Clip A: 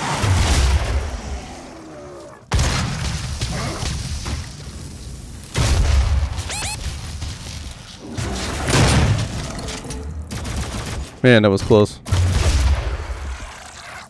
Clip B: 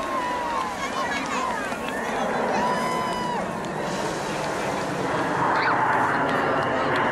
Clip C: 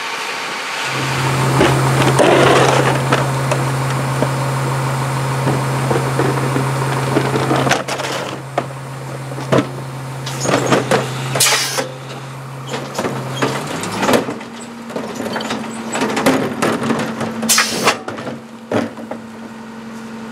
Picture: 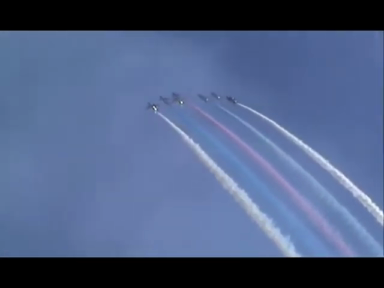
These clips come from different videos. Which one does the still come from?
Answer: B